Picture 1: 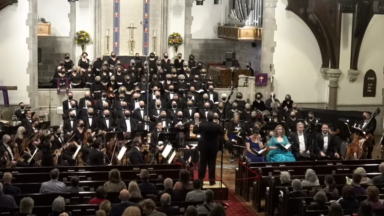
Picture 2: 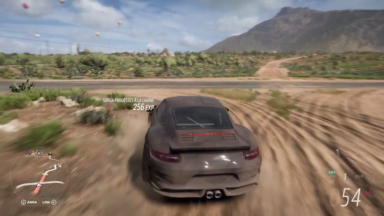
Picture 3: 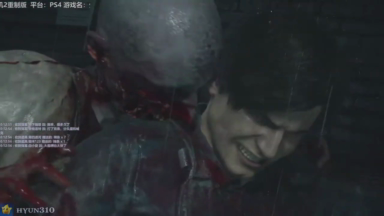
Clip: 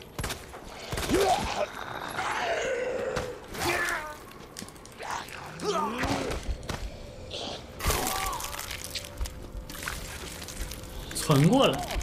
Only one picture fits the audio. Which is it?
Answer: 3